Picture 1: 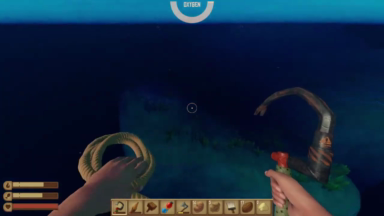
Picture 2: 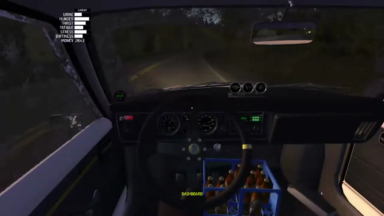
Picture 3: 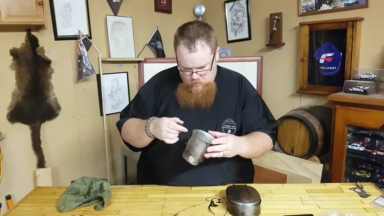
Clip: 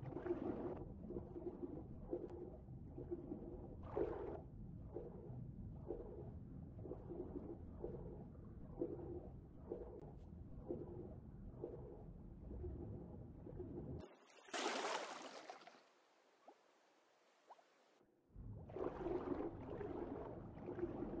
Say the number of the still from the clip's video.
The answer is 1